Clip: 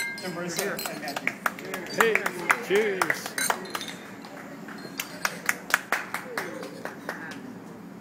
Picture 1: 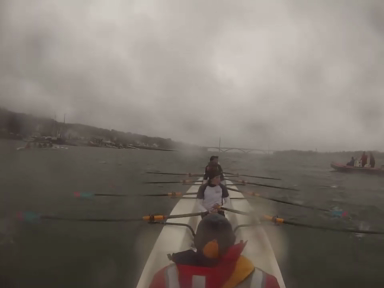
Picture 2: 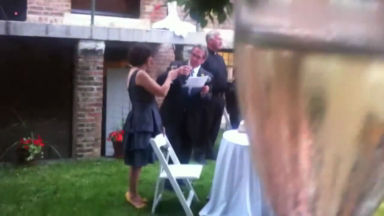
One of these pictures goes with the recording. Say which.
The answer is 2